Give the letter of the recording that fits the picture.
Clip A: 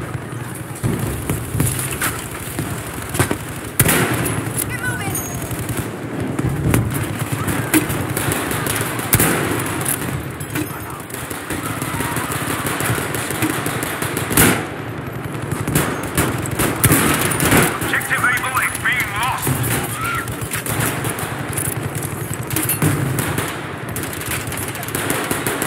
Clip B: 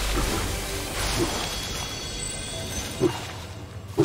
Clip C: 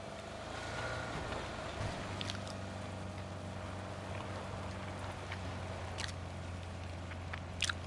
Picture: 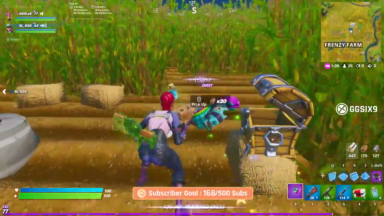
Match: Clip B